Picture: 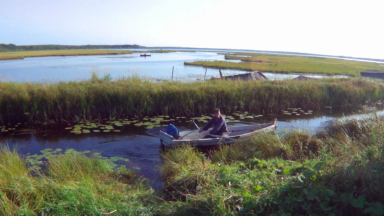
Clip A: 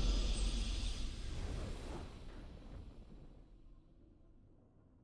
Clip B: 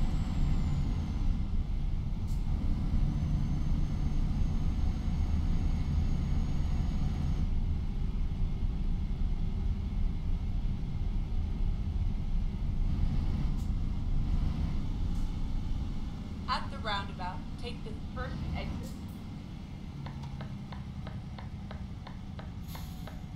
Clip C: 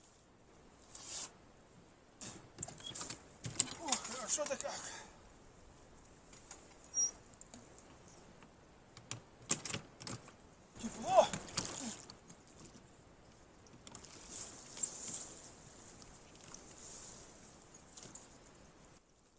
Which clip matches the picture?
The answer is C